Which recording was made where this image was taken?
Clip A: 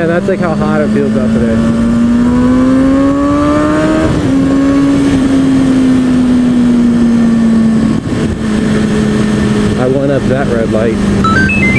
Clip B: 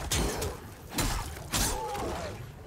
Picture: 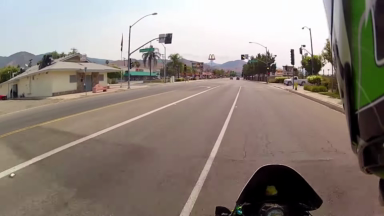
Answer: A